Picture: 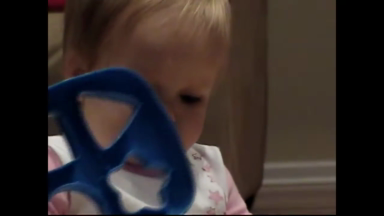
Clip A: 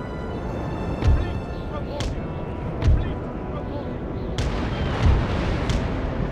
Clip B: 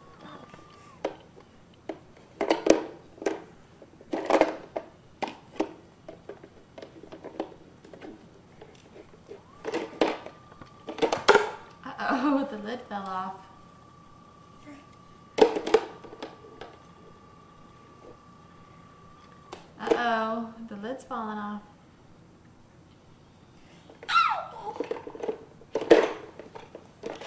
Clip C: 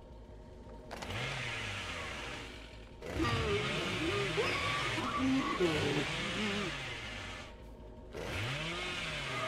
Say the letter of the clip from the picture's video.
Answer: B